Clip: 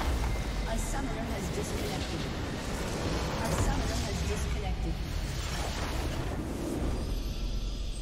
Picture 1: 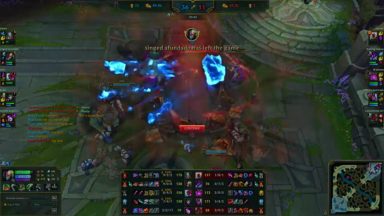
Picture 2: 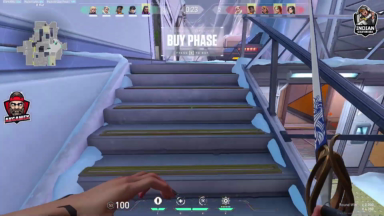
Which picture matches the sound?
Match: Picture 1